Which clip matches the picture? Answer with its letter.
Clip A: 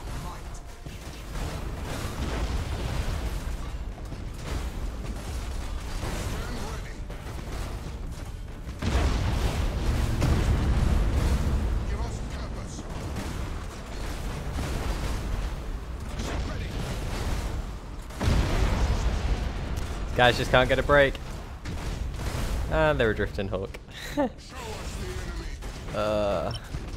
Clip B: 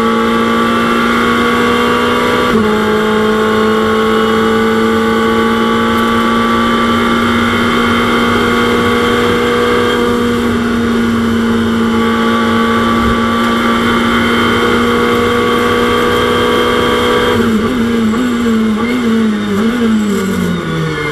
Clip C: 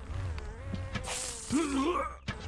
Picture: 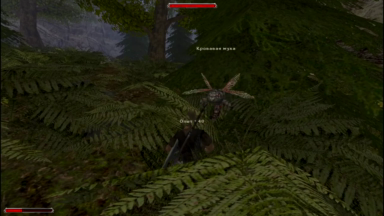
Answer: C